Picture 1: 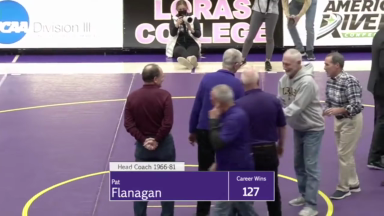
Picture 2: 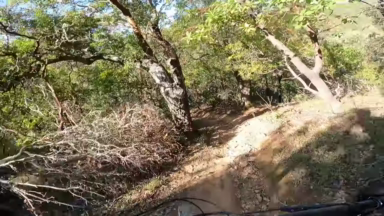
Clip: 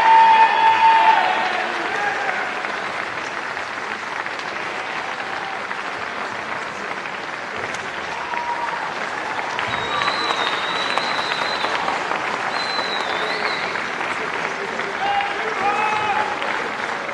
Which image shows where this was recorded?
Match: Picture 1